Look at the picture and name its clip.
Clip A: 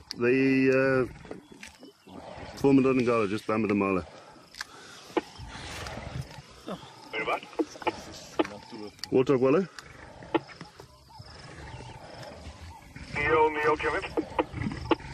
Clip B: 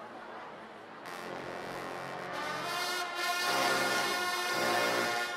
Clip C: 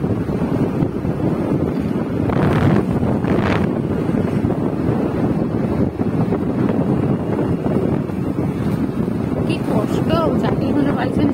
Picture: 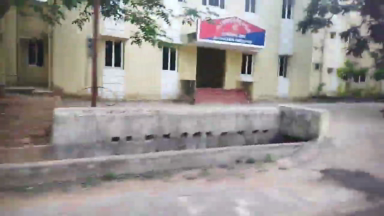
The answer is C